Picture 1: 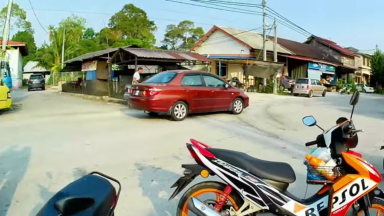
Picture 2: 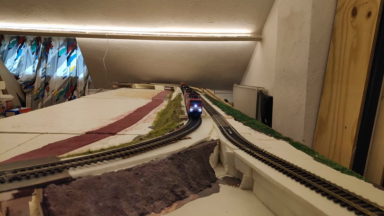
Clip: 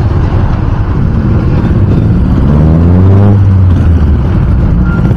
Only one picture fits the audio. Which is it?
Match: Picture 1